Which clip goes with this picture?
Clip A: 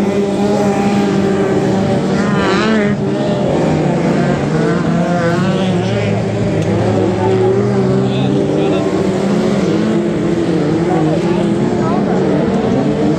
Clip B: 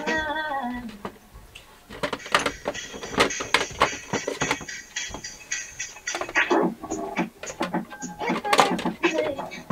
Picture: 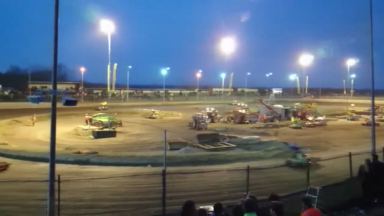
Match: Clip A